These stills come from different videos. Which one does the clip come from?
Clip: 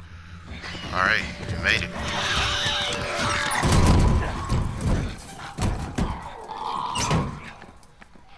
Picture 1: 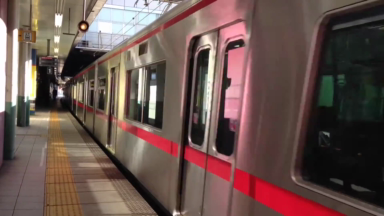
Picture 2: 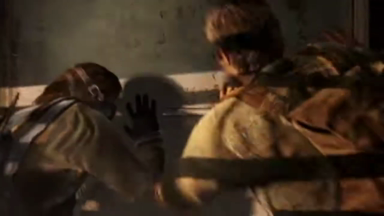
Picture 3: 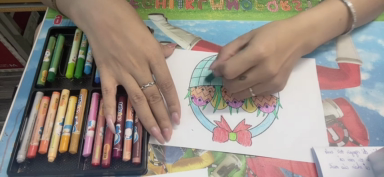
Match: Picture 2